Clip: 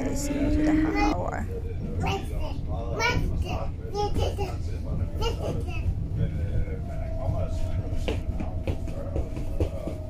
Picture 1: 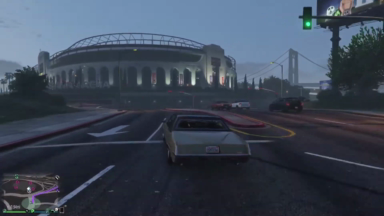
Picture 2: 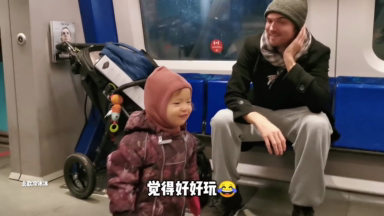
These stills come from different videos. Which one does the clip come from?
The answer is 2